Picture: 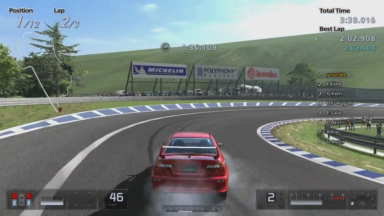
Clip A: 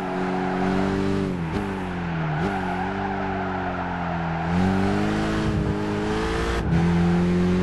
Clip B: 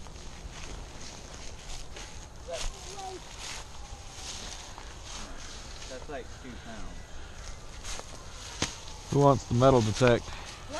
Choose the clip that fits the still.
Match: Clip A